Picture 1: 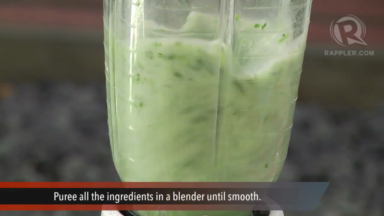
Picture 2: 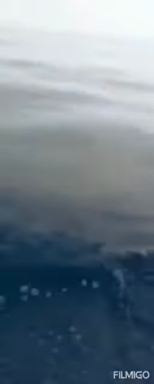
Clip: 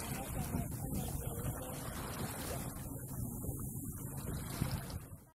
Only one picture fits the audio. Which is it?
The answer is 2